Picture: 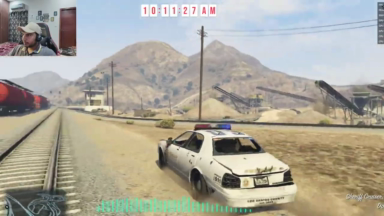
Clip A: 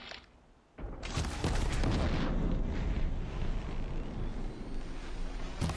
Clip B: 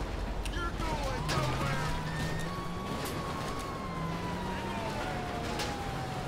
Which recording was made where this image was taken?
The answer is B